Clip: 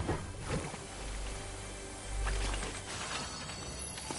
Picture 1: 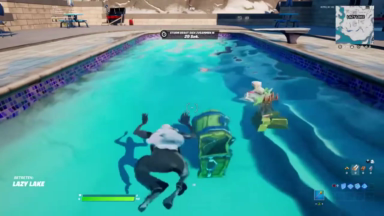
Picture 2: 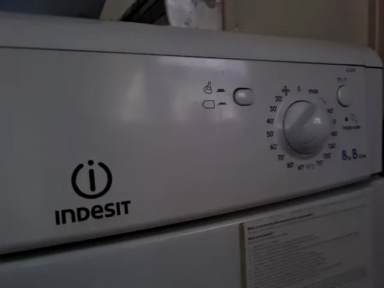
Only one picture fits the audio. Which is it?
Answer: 1